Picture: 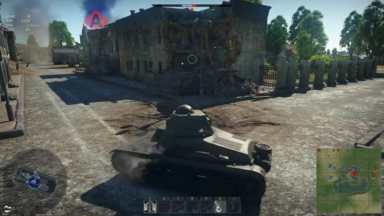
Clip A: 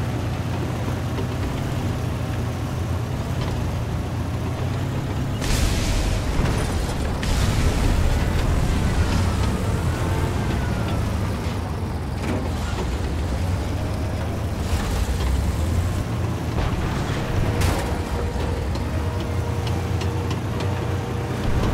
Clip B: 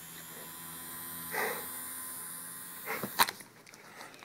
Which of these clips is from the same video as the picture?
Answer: A